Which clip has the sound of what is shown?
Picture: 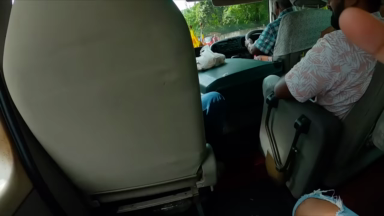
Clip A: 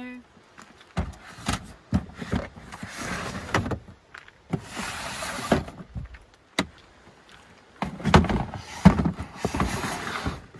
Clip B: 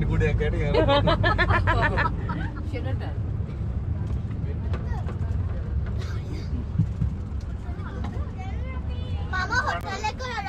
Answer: B